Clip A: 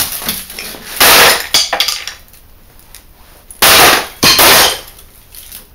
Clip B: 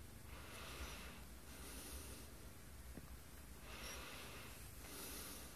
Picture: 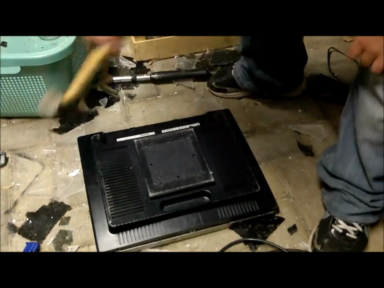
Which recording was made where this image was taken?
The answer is A